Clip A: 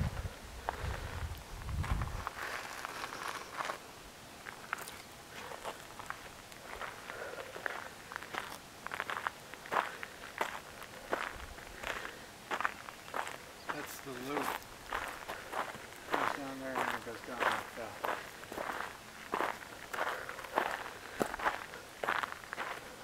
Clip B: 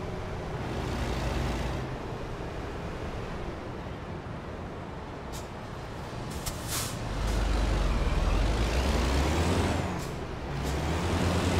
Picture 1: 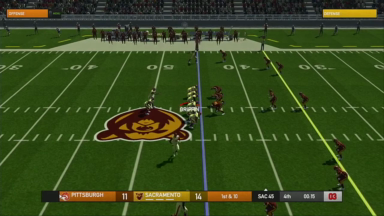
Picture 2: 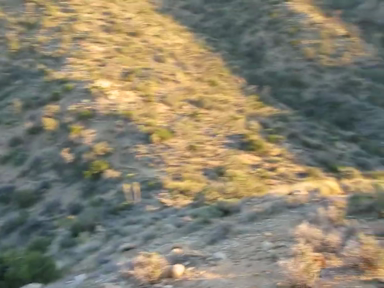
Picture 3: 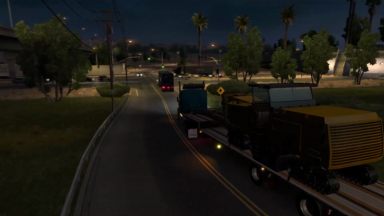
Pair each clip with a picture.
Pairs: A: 2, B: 3